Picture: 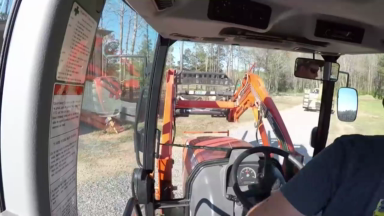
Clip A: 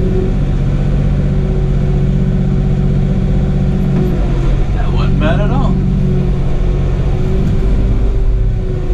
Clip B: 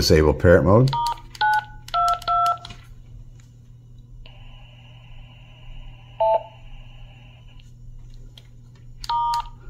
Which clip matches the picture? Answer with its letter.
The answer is A